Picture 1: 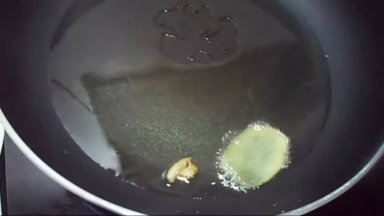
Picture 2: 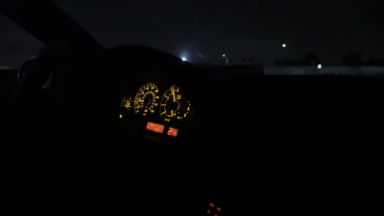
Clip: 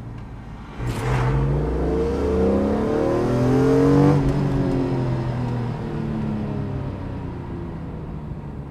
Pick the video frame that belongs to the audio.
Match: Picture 2